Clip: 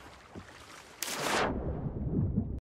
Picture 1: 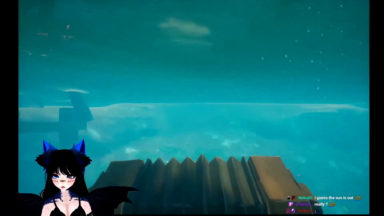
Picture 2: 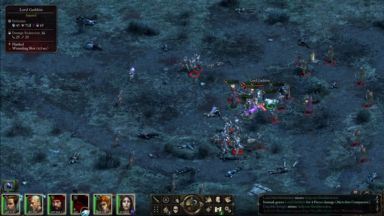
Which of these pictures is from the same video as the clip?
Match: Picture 1